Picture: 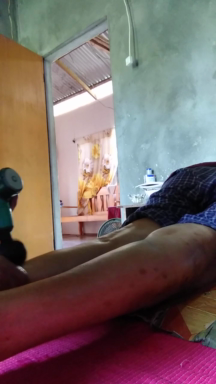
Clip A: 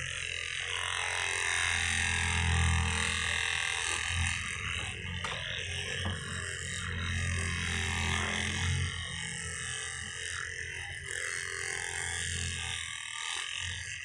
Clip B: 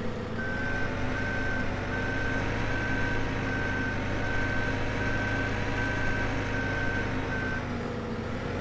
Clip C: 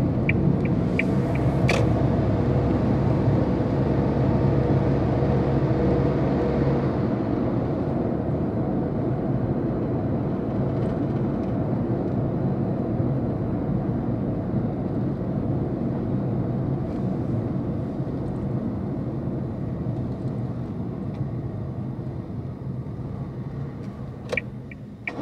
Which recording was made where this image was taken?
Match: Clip A